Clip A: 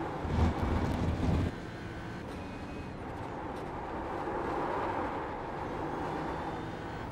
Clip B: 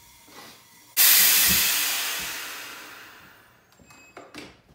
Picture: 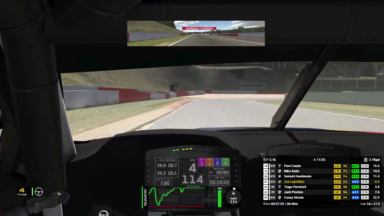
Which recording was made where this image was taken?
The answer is A